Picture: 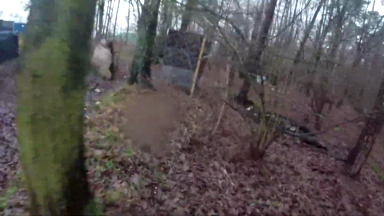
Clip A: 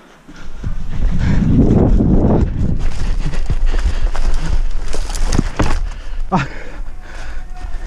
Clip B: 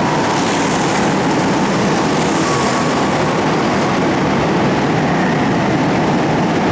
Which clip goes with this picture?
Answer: A